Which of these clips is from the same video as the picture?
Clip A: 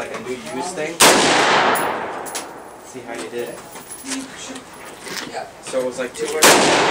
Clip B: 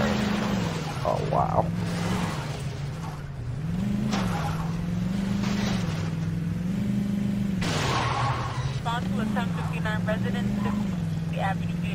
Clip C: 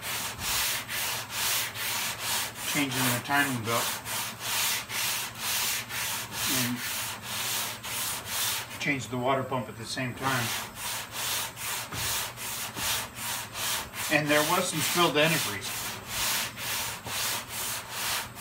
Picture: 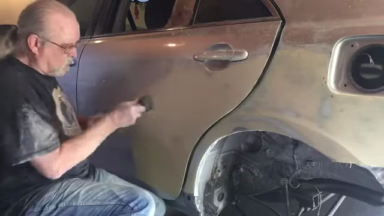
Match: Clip C